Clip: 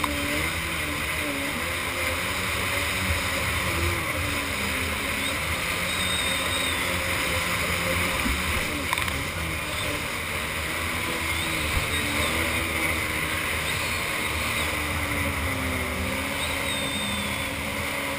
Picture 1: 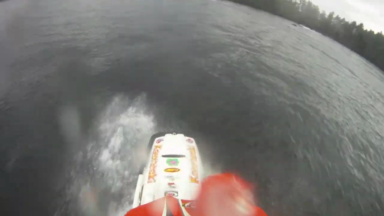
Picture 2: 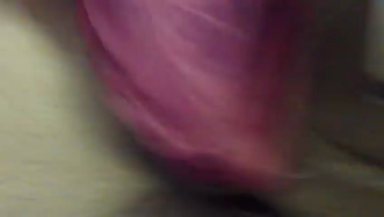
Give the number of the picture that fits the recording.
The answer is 1